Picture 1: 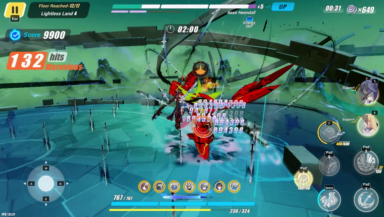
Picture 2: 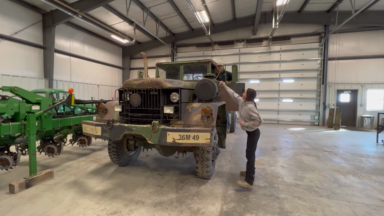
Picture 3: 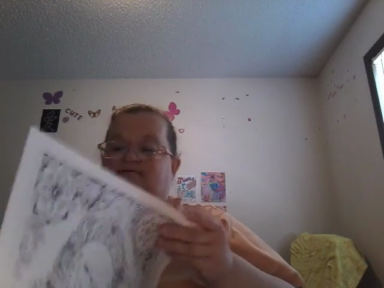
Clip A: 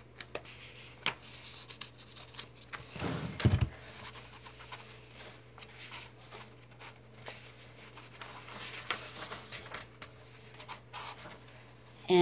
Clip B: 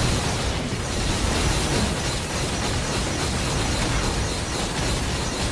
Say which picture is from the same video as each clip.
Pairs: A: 3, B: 1